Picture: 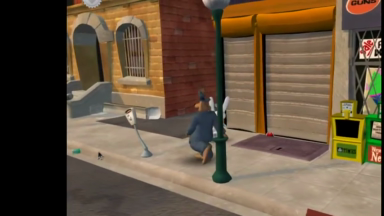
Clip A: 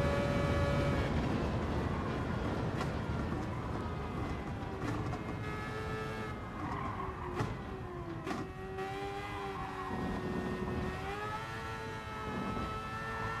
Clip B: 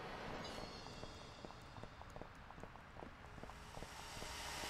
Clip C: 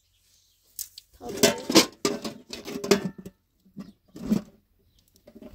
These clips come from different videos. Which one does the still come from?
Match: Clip B